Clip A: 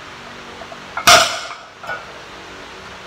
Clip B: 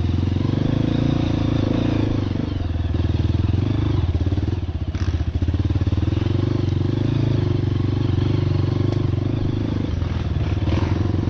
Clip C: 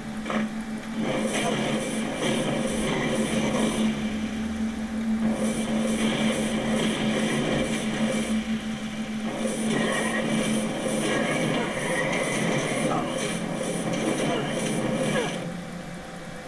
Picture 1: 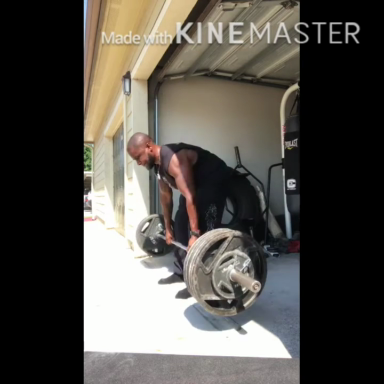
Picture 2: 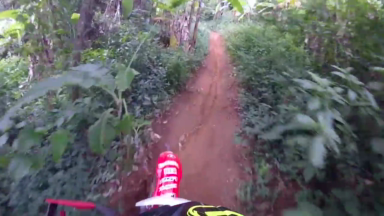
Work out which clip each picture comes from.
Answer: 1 A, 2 B